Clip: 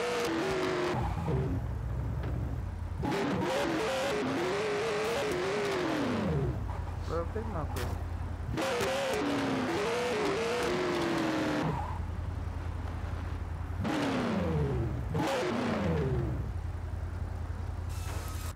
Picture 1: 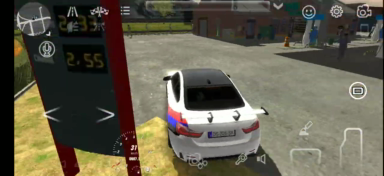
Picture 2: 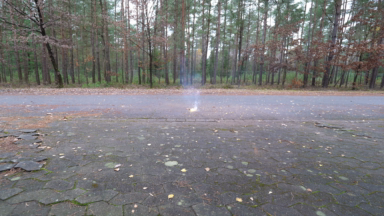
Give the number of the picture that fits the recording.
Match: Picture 1